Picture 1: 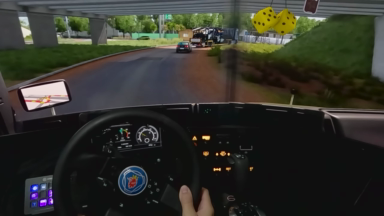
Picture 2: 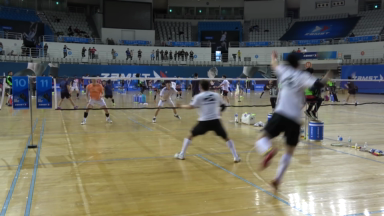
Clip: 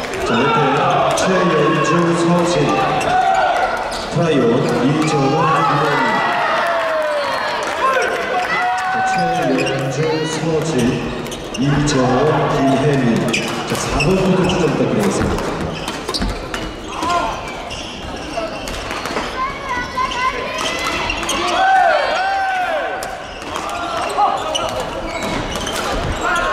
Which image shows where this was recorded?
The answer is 2